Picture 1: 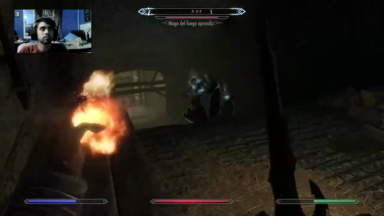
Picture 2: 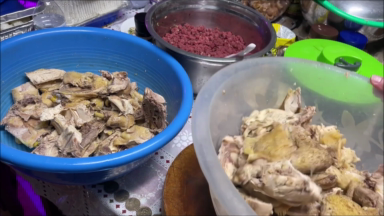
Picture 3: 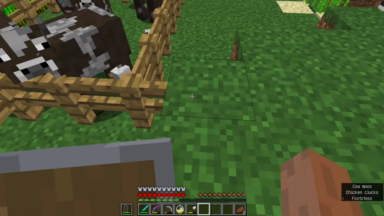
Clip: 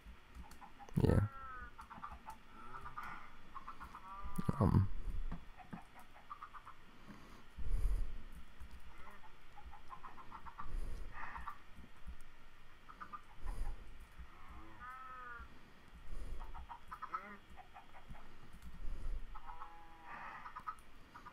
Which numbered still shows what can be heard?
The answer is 3